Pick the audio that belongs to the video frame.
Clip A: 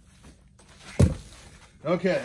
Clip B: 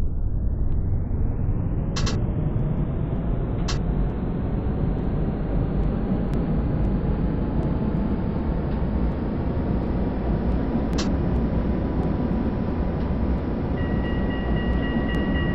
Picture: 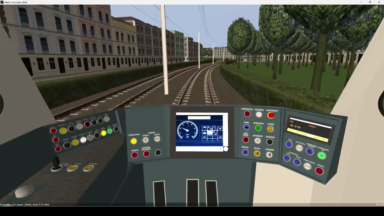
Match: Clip B